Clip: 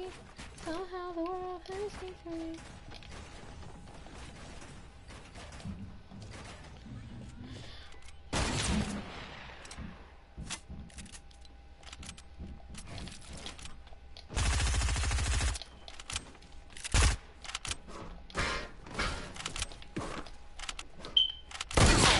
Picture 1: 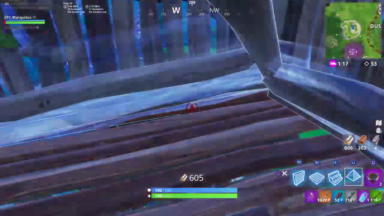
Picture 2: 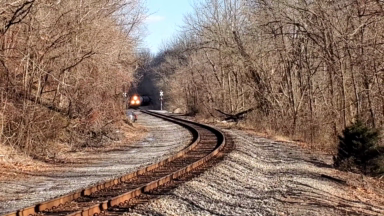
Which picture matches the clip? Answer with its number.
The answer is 1